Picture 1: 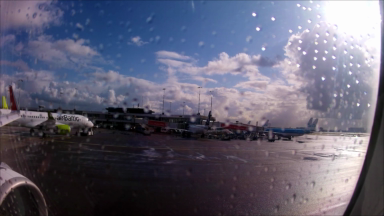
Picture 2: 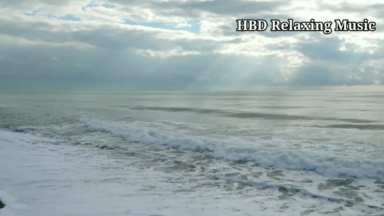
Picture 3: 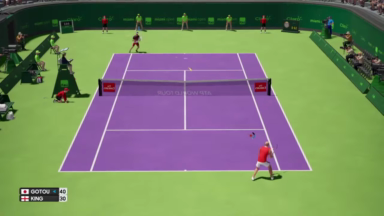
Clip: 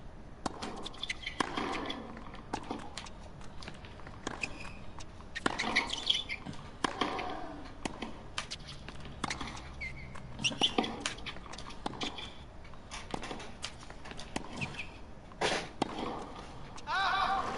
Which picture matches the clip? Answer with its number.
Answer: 3